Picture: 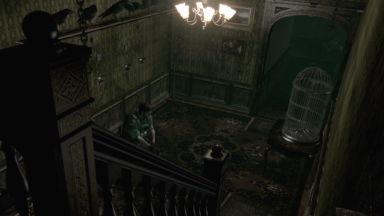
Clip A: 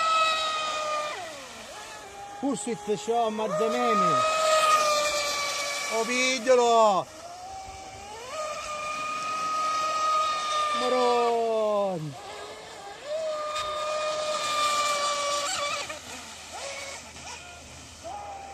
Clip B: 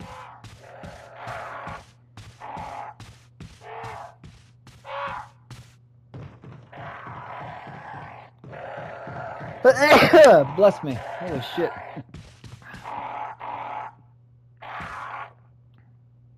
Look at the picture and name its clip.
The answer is B